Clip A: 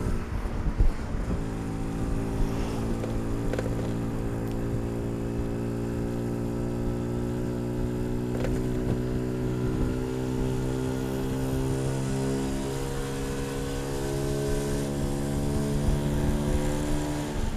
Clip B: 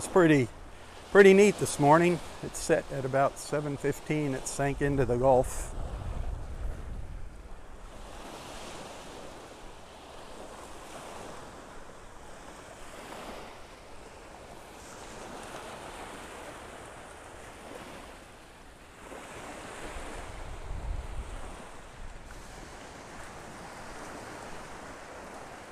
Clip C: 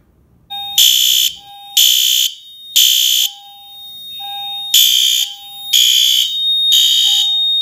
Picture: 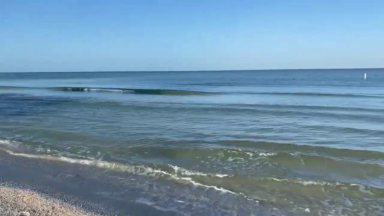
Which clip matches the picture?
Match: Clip B